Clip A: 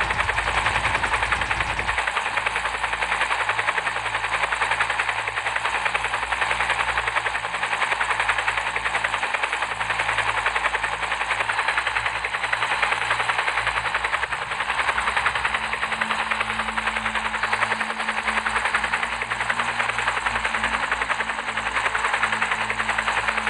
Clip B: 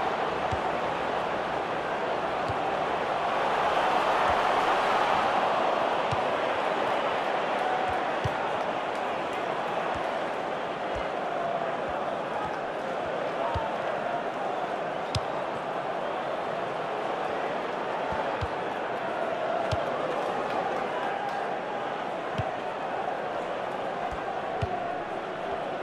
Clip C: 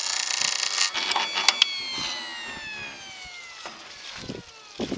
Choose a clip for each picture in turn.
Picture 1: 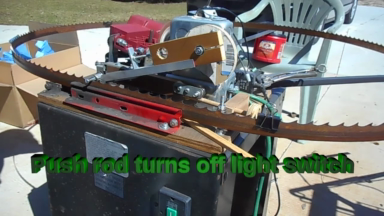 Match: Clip C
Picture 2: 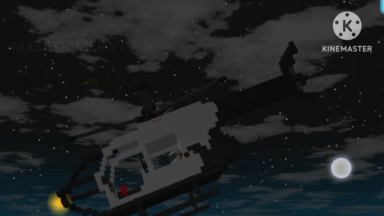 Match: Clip A